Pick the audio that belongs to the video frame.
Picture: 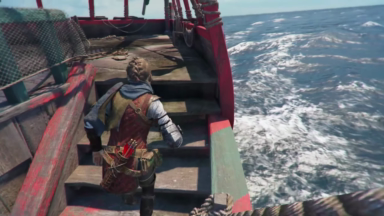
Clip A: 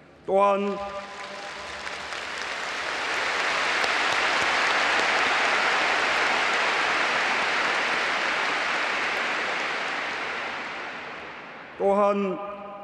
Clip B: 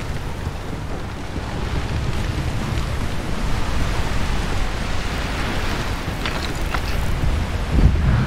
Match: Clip B